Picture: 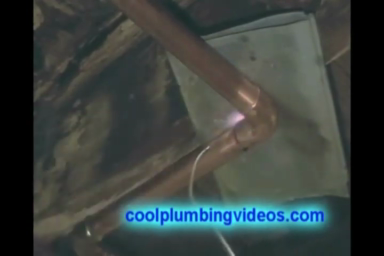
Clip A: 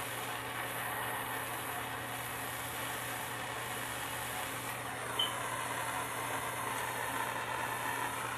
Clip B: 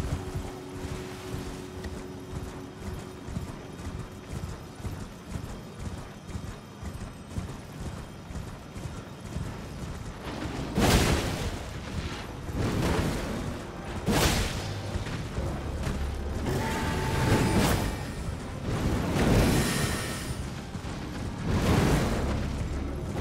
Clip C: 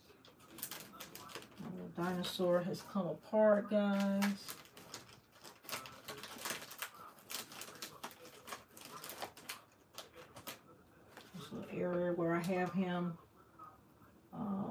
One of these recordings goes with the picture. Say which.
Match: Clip A